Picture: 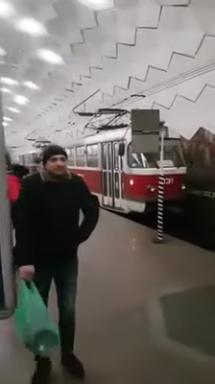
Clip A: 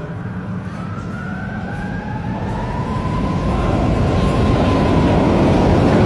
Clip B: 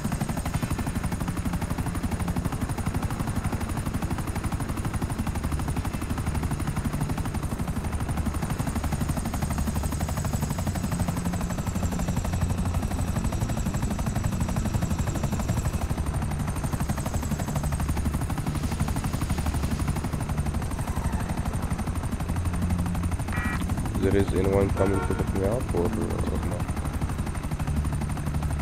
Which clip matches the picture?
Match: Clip A